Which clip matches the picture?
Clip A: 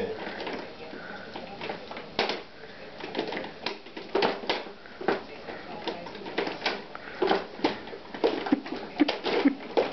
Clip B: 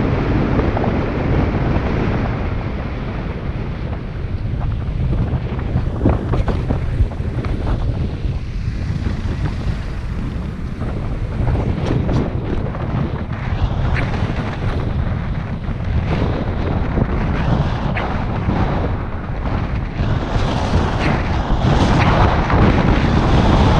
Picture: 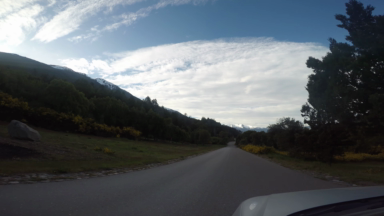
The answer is B